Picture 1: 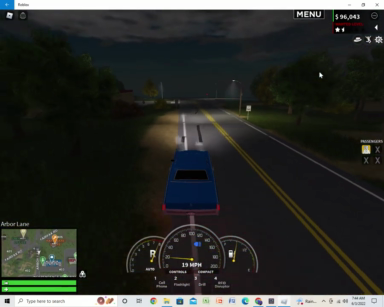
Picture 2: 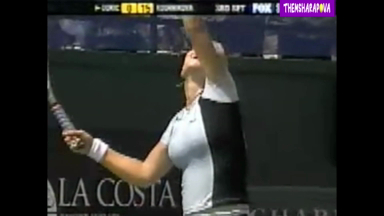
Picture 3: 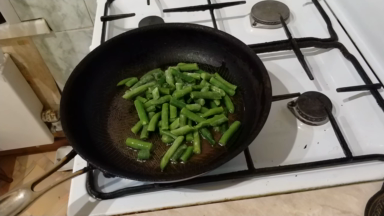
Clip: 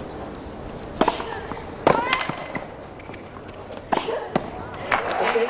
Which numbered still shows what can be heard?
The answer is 2